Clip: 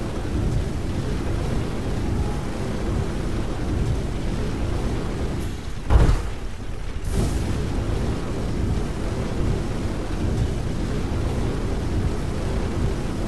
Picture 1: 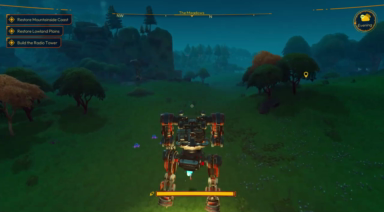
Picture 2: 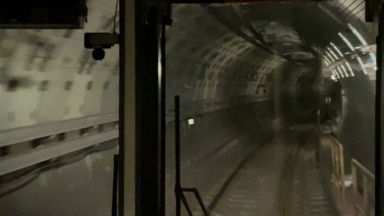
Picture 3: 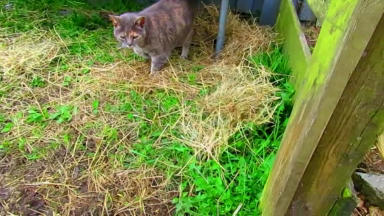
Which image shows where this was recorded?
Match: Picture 1